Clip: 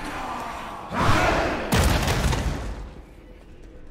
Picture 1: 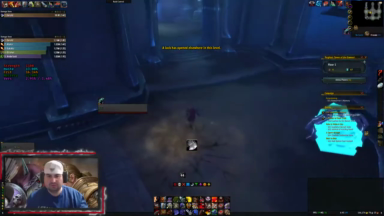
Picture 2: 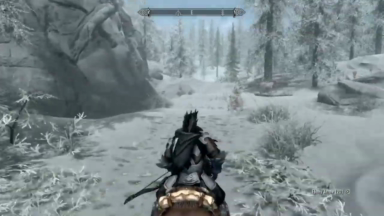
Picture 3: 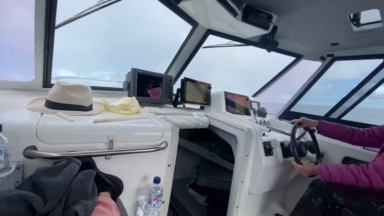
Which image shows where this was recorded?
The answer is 1